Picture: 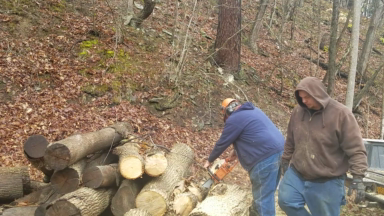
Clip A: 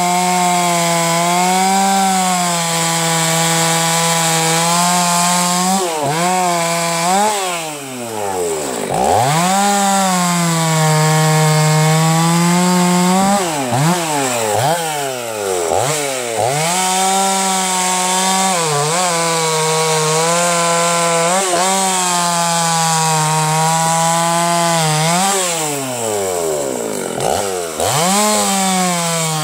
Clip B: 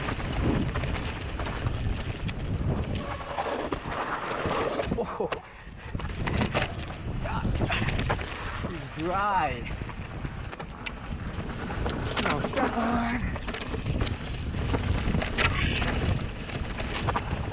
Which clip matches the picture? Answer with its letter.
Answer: A